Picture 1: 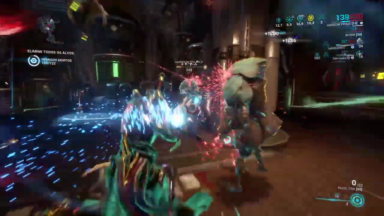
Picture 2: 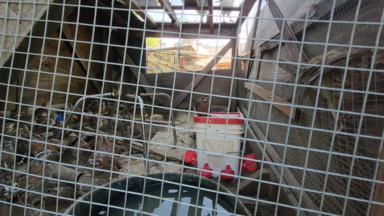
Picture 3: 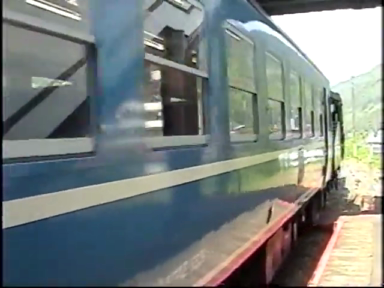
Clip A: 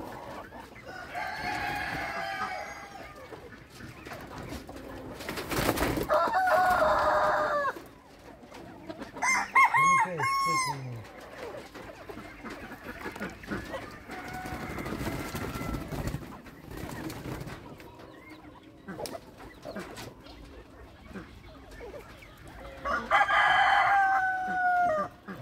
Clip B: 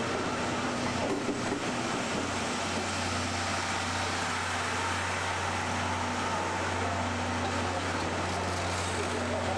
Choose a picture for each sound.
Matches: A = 2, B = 3